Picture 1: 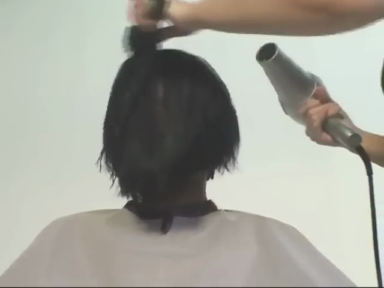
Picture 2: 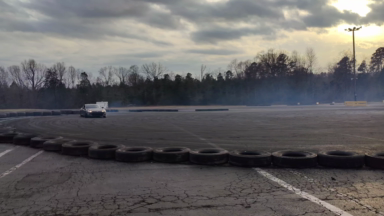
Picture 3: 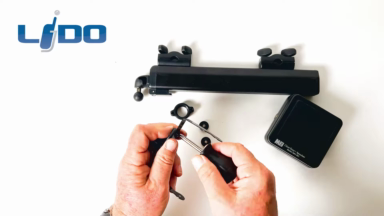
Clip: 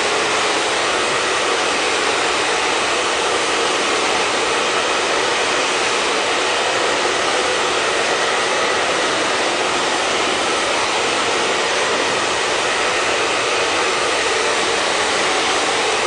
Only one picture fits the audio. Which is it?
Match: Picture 1